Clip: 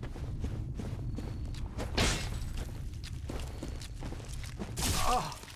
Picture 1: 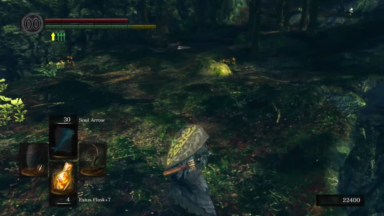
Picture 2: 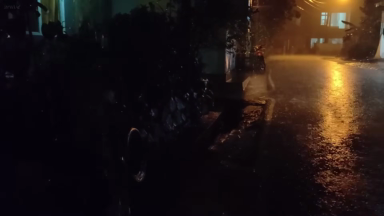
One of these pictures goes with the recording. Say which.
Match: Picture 1